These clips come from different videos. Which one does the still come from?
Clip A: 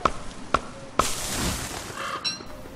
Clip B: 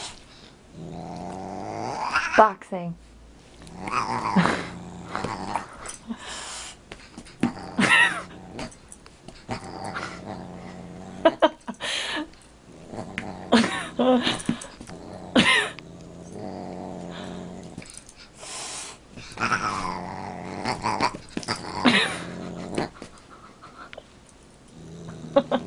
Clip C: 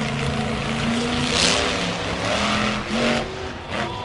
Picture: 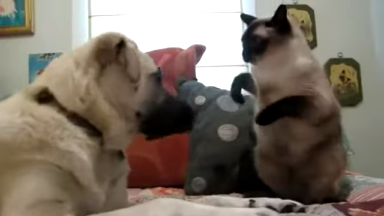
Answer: B